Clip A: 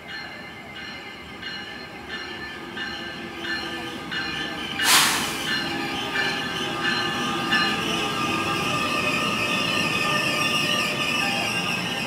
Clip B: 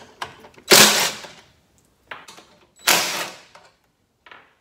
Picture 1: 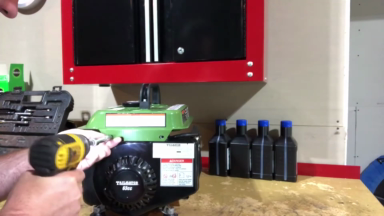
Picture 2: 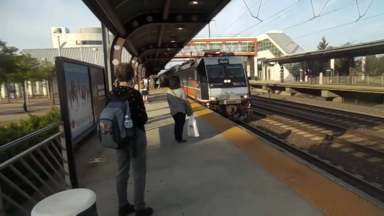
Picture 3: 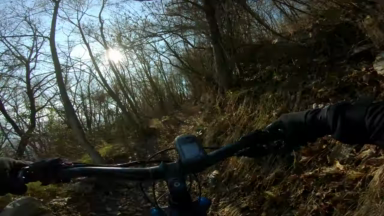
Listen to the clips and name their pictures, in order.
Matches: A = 2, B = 1